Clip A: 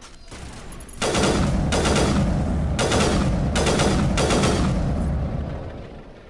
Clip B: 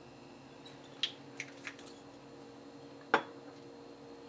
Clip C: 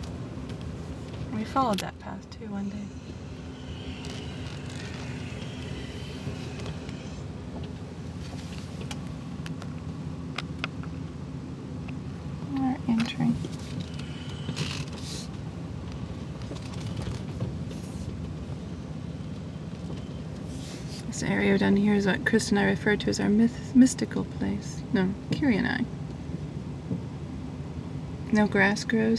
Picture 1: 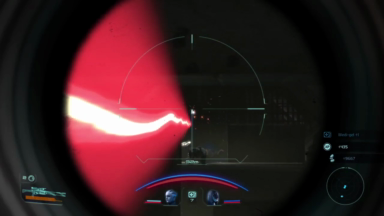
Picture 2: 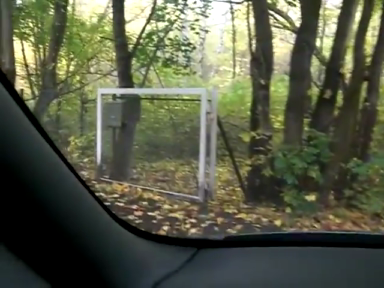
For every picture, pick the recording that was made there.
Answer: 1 A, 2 C